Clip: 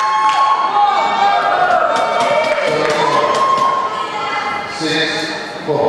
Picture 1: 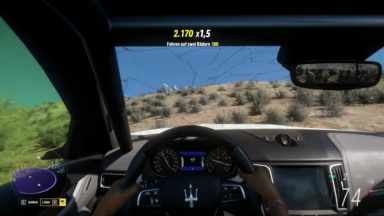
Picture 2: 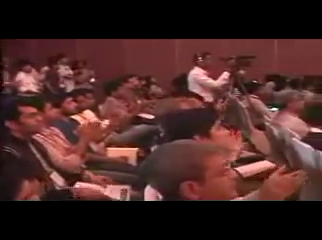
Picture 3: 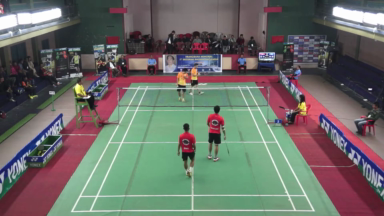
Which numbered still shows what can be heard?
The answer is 3